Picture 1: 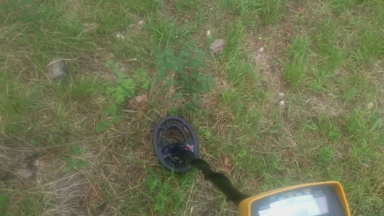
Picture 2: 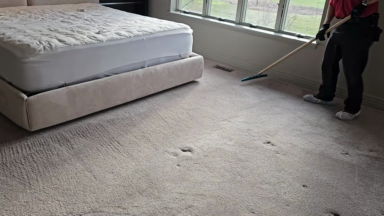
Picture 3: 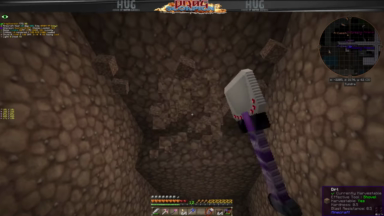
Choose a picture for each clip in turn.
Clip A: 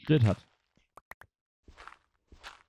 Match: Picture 3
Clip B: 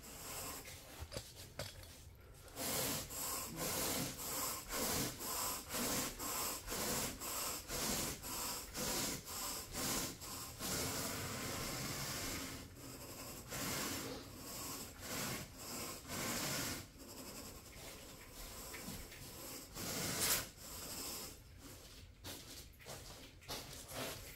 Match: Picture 2